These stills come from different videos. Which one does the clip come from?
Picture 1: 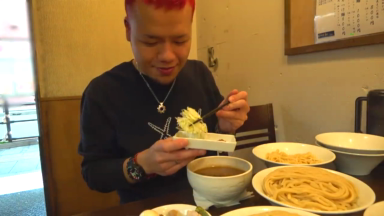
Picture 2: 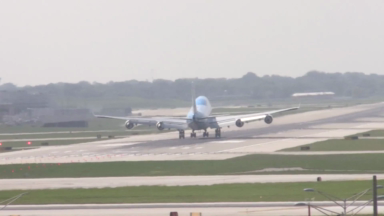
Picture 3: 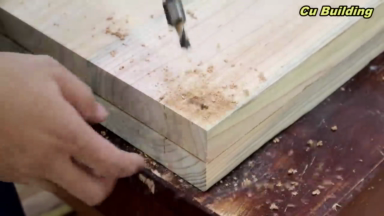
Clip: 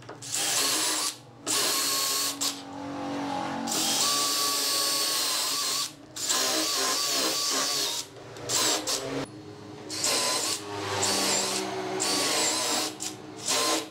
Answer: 3